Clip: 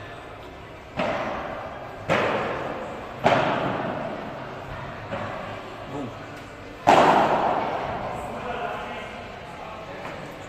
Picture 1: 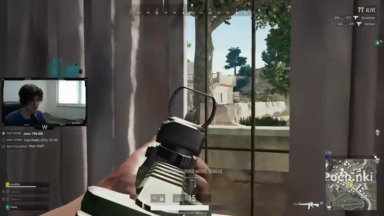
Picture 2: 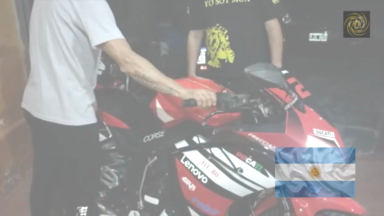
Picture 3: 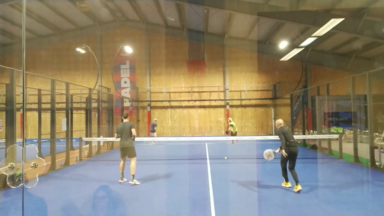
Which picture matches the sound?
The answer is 3